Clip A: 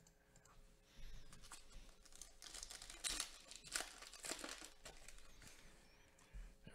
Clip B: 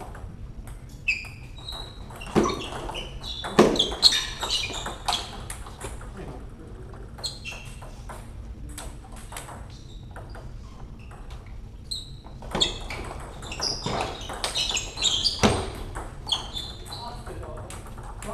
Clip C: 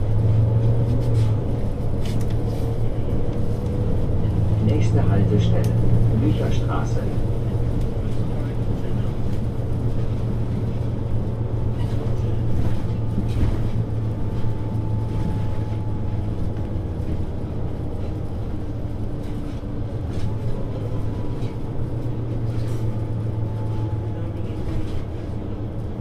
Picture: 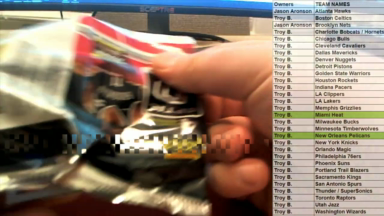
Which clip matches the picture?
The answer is A